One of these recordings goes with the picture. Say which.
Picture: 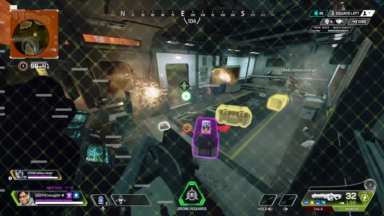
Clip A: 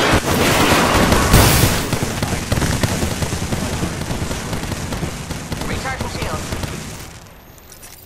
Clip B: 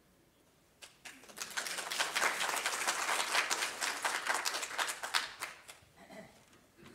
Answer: A